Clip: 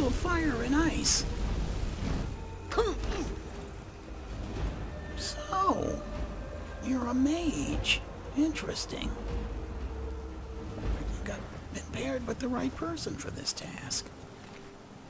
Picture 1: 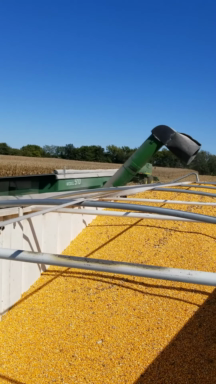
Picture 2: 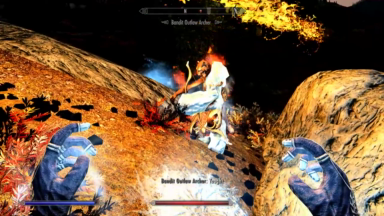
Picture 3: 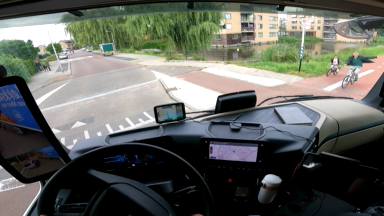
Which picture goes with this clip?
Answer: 2